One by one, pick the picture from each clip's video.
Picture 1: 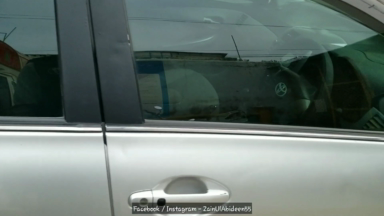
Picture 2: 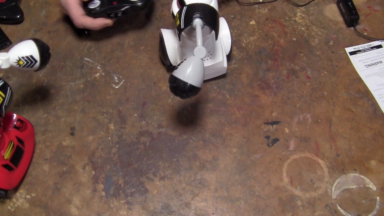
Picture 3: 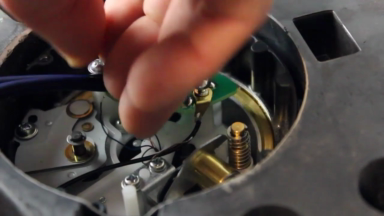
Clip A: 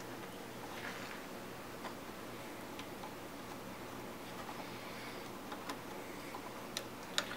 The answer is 3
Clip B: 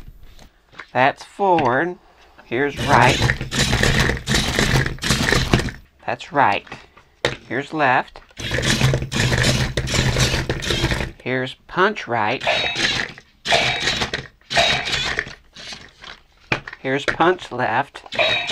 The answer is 2